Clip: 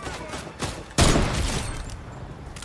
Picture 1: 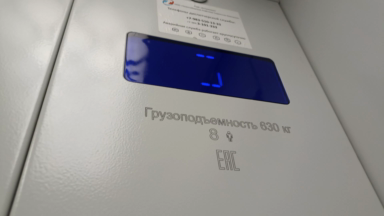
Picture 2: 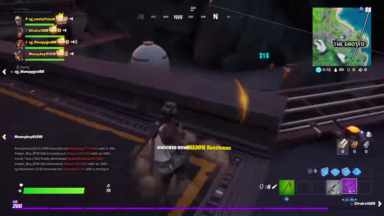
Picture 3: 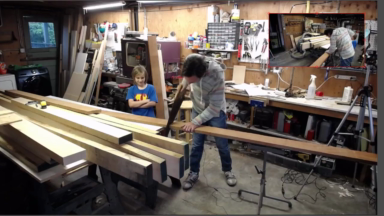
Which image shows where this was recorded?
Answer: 2